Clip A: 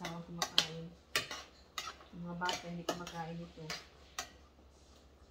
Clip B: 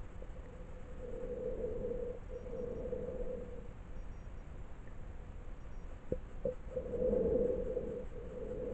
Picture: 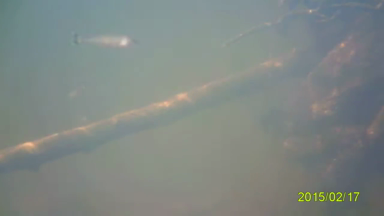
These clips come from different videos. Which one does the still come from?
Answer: B